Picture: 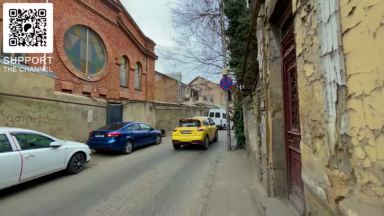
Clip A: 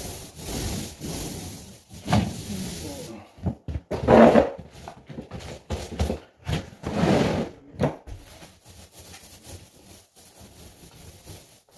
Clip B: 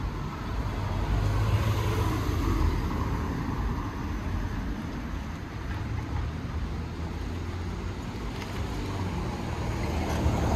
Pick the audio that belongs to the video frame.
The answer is B